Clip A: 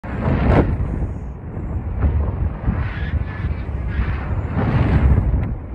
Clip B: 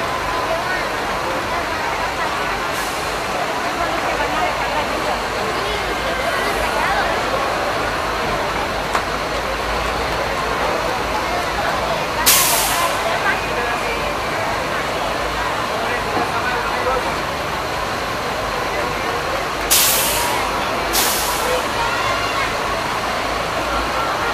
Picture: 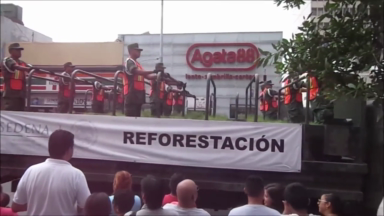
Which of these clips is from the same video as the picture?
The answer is B